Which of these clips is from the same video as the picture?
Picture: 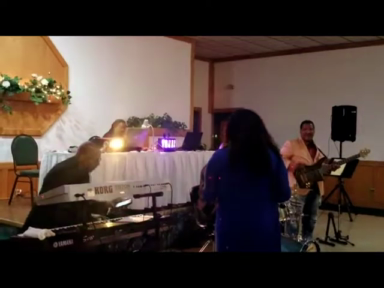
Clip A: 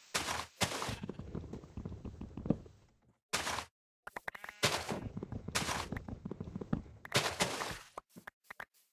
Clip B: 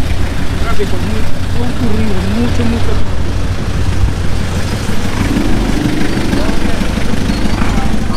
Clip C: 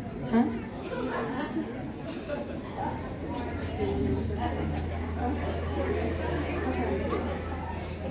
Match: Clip C